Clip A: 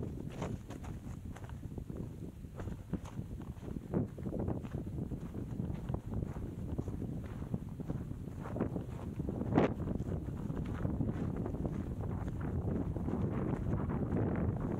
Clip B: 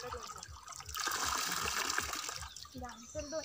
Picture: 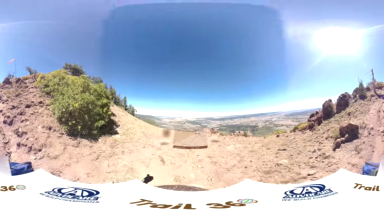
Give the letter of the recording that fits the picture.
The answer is A